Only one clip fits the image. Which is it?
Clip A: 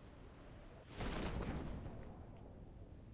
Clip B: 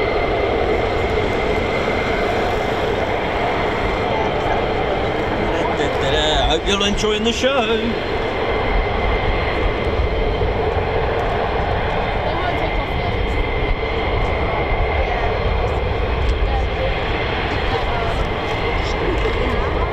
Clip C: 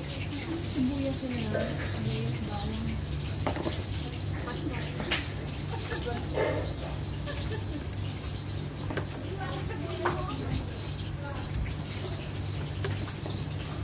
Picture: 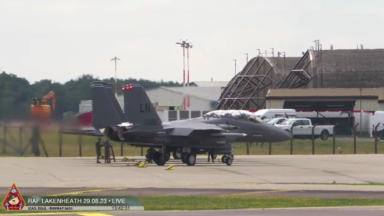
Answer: B